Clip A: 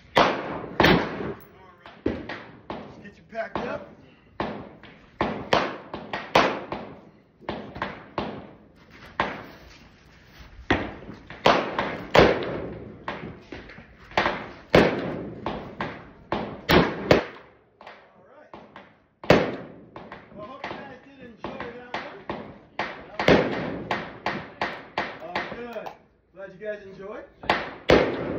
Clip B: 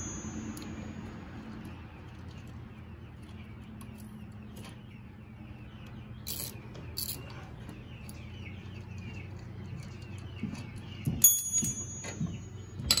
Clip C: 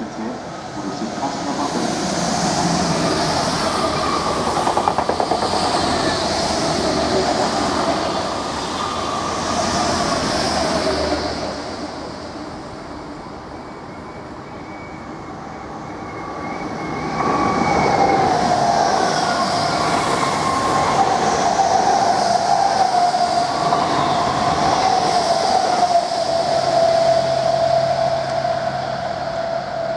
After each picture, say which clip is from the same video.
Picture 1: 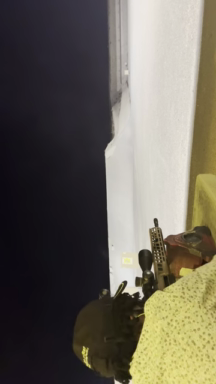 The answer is A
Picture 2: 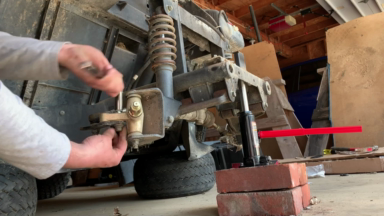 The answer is B